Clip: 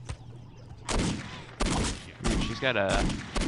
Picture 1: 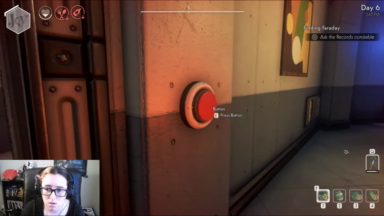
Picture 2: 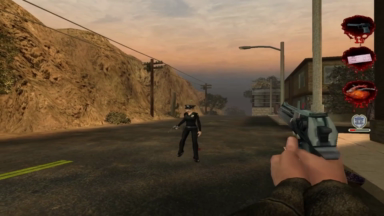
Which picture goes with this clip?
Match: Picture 2